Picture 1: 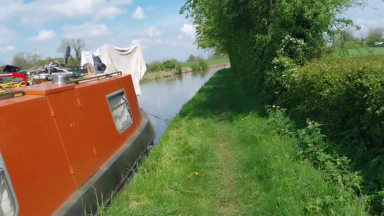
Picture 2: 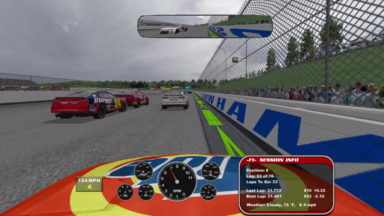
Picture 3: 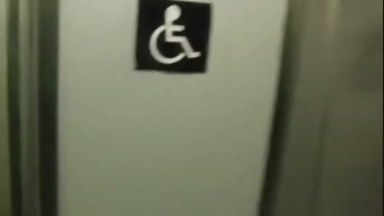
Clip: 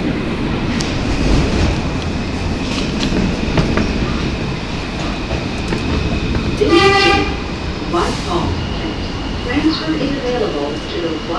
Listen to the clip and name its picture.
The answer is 3